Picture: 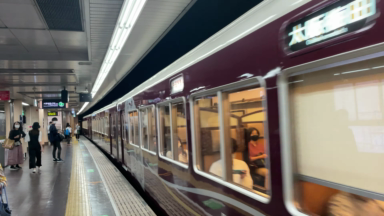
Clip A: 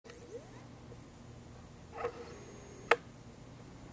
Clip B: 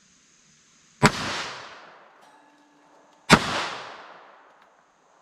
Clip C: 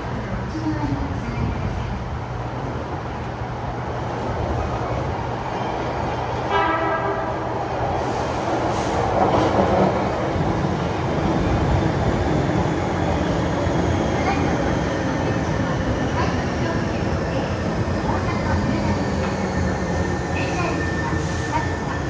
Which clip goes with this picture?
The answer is C